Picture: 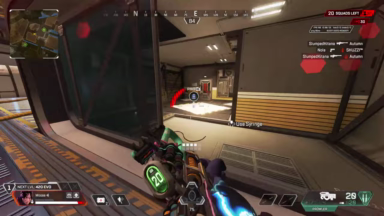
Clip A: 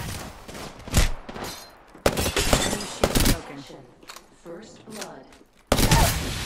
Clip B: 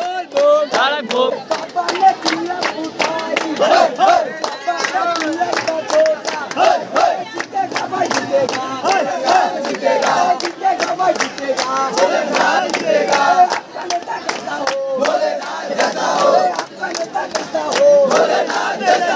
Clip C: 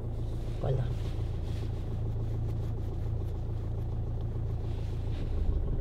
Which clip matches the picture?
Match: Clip A